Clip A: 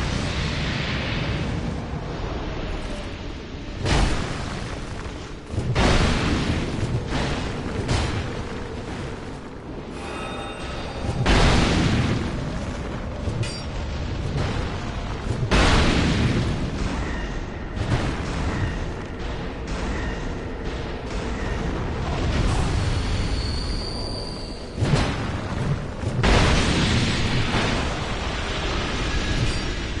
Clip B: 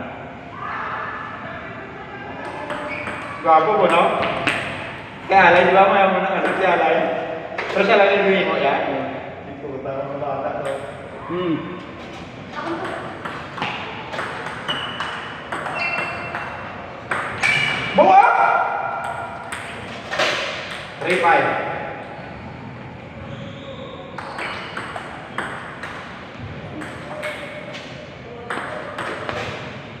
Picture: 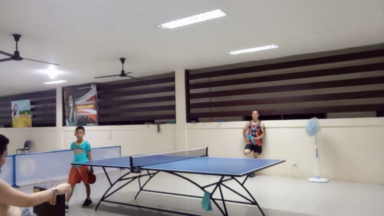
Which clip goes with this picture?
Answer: B